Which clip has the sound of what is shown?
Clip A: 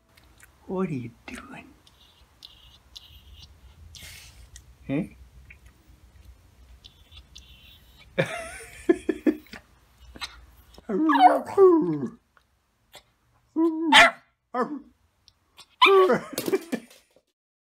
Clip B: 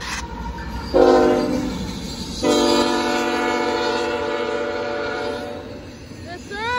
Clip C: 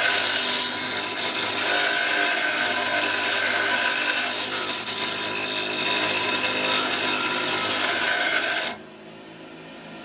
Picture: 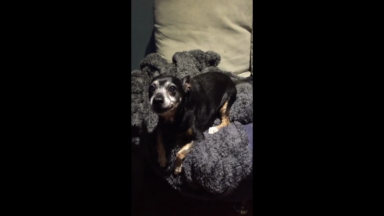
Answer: A